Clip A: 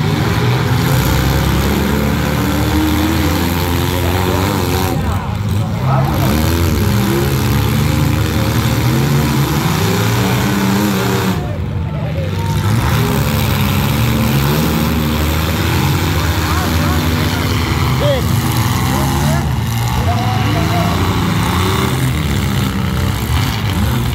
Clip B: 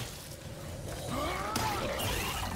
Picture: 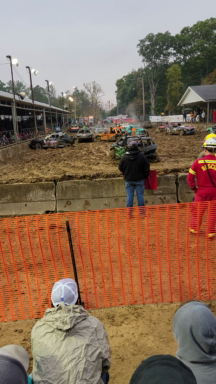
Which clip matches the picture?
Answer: A